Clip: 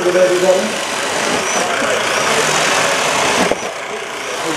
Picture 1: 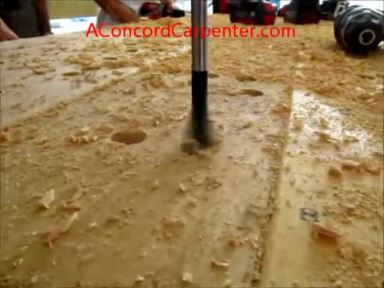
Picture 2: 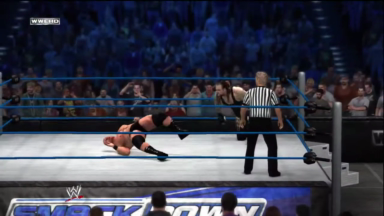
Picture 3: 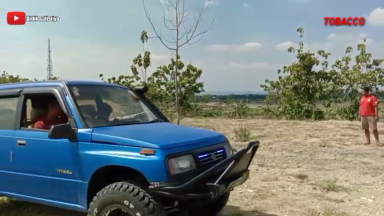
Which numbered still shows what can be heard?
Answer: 1